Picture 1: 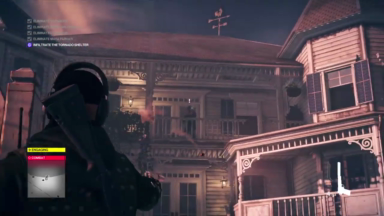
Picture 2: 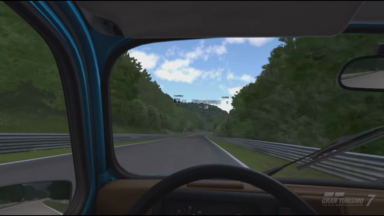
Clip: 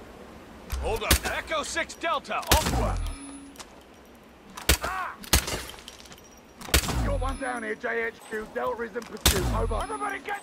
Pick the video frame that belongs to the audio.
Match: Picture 1